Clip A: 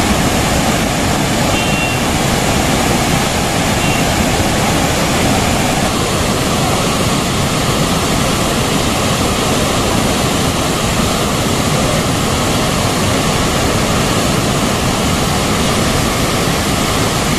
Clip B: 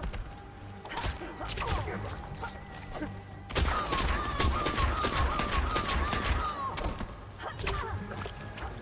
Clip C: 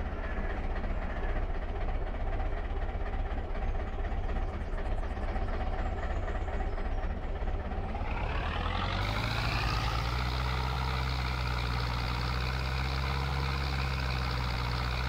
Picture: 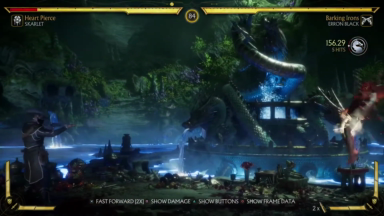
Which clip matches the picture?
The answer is B